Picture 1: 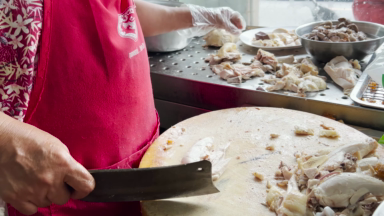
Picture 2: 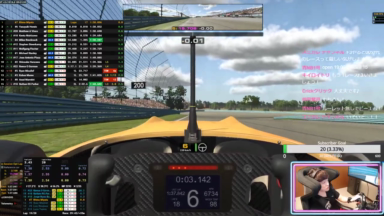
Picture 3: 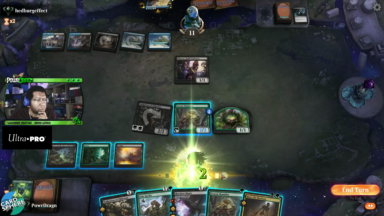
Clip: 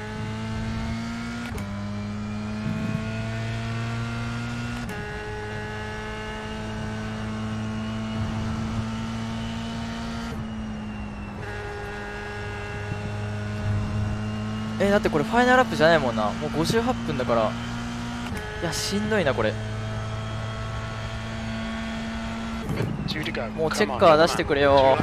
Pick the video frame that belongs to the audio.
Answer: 2